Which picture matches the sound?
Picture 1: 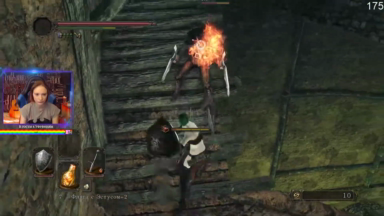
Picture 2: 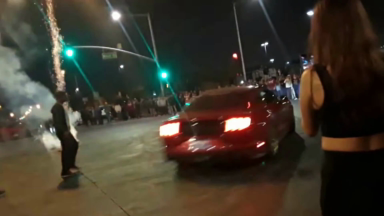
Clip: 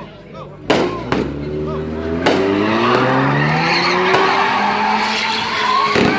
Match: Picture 2